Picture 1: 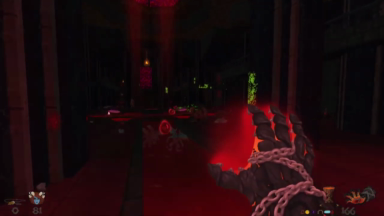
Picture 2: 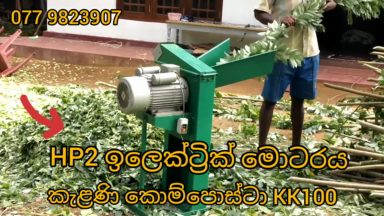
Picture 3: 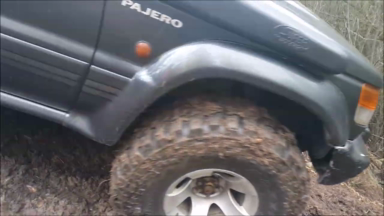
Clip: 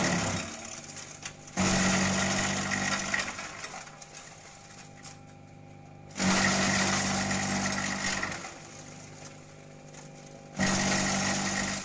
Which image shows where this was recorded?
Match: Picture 2